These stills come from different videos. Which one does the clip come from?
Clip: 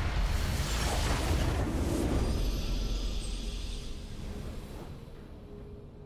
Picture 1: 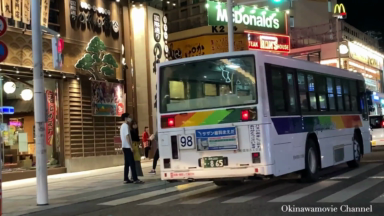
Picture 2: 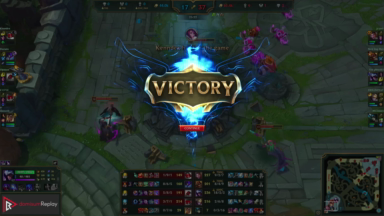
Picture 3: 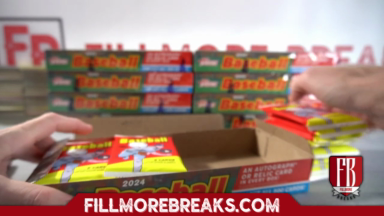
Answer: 2